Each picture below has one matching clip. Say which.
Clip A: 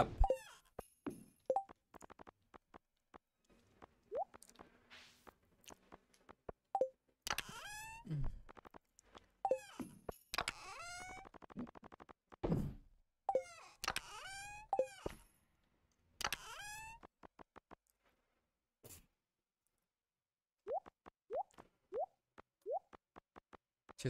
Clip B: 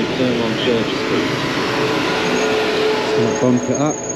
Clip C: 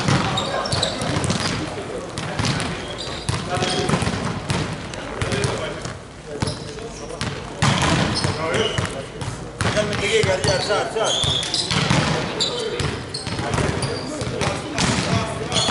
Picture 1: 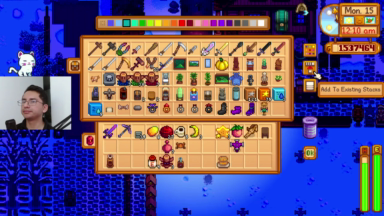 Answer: A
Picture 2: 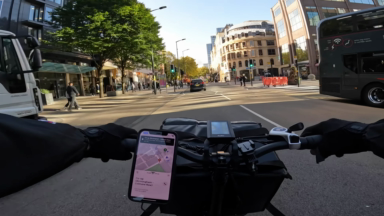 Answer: B